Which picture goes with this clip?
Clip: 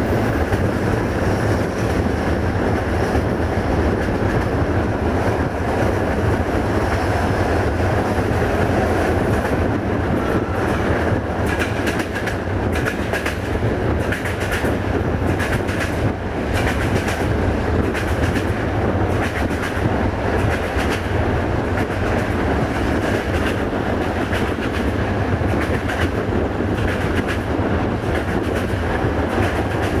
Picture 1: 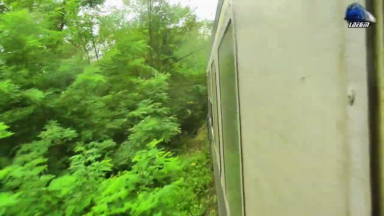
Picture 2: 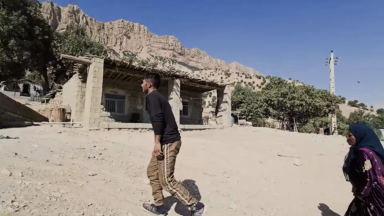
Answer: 1